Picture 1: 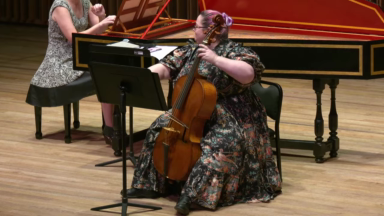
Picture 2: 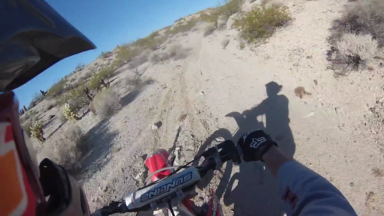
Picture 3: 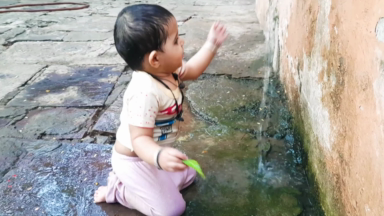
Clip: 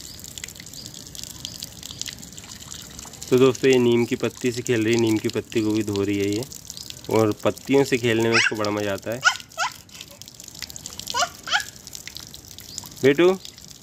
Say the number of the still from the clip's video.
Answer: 3